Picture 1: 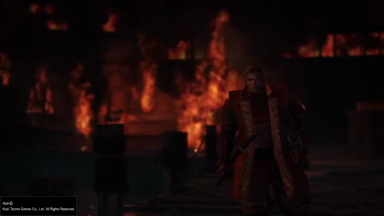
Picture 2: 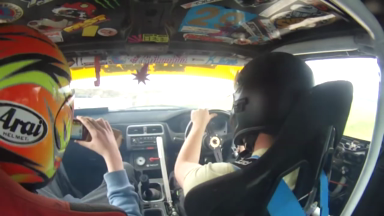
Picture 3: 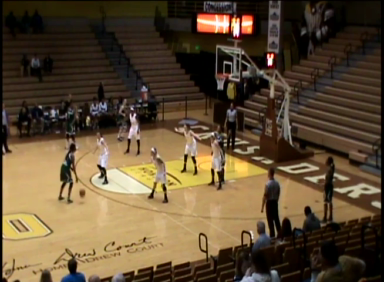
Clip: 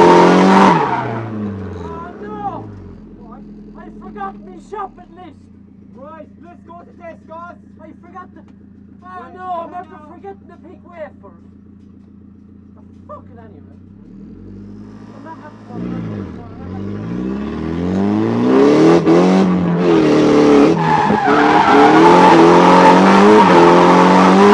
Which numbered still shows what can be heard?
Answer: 2